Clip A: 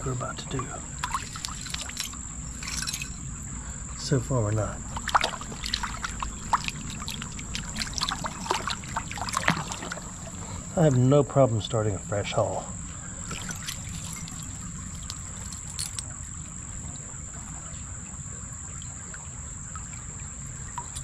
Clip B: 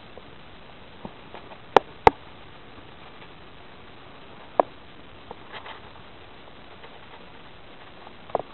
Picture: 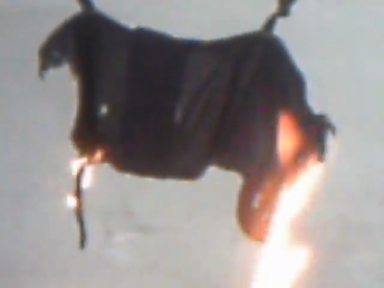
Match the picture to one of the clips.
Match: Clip B